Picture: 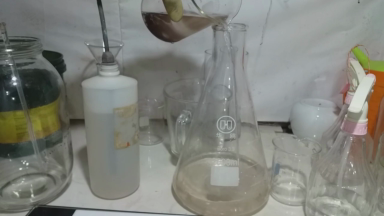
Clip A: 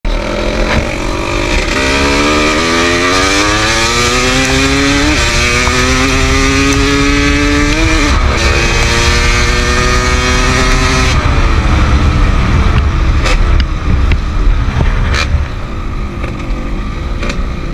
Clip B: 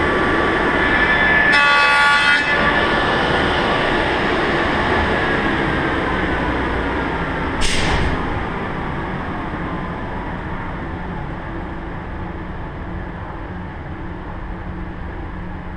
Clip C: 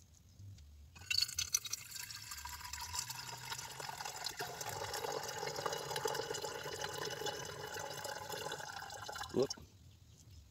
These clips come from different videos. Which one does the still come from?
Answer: C